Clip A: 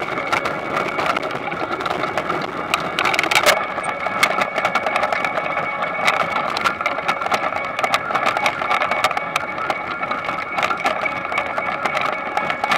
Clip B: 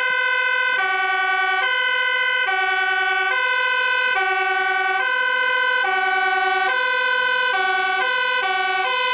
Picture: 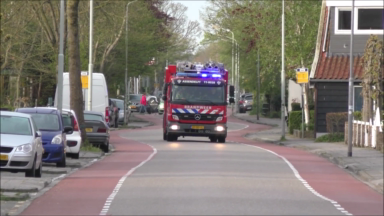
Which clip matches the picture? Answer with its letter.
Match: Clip B